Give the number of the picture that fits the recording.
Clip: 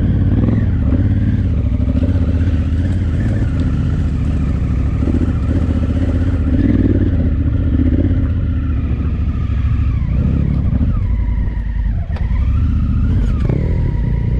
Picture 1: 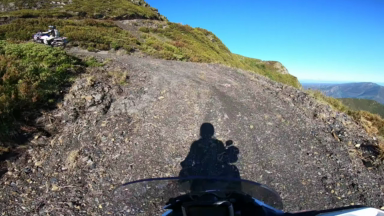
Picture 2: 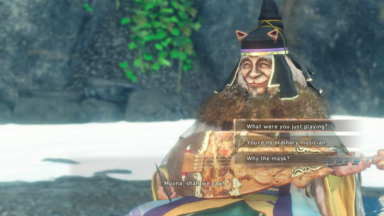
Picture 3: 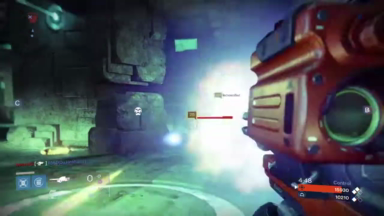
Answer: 1